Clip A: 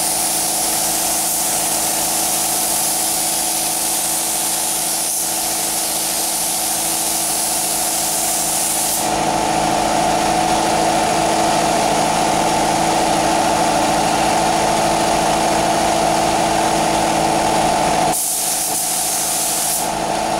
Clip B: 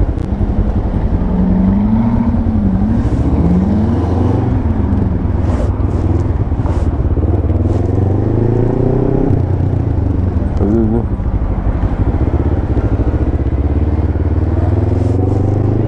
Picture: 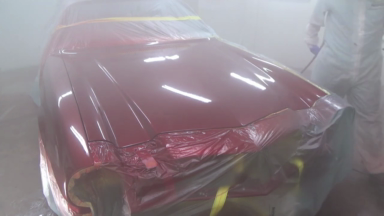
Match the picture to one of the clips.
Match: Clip A